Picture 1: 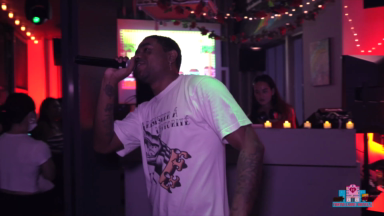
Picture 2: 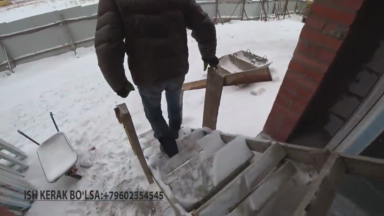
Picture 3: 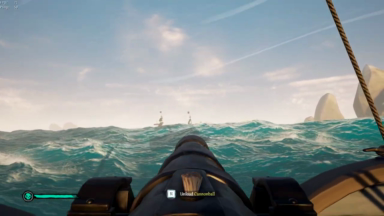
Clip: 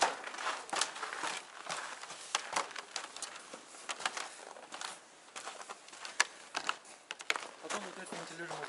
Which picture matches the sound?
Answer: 2